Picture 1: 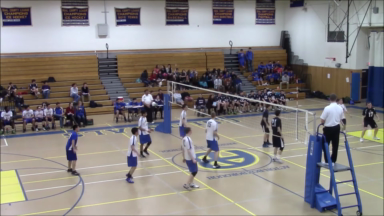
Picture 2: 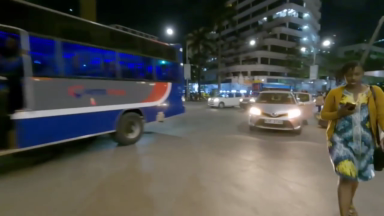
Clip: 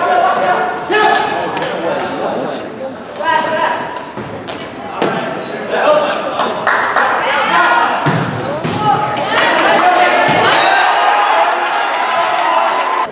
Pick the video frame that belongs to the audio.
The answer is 1